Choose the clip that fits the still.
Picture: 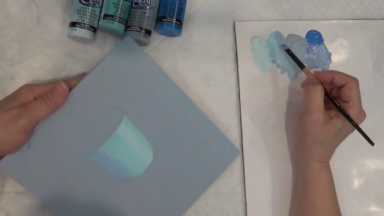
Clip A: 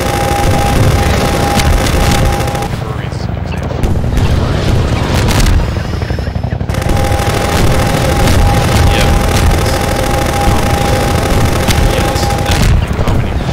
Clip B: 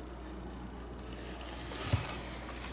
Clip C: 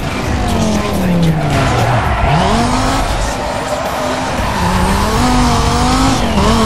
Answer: B